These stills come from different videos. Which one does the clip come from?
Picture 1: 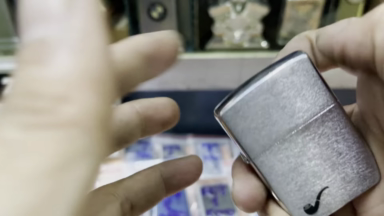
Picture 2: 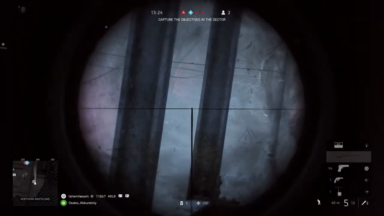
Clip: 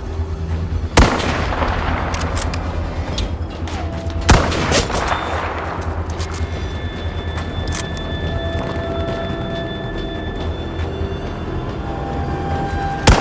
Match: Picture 2